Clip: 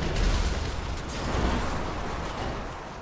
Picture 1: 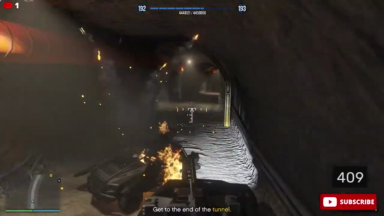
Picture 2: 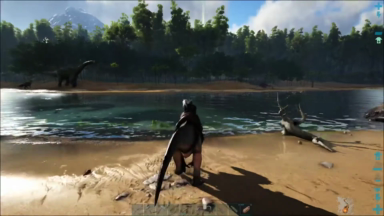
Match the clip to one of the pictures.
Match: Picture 1